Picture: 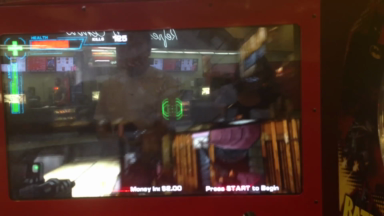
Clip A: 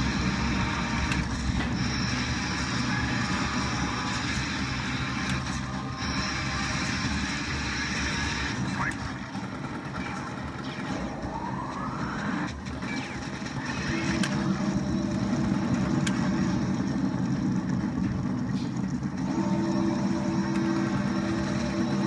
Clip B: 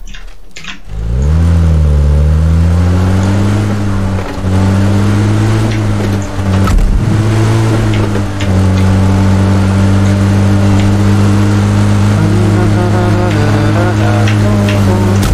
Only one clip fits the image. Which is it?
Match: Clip A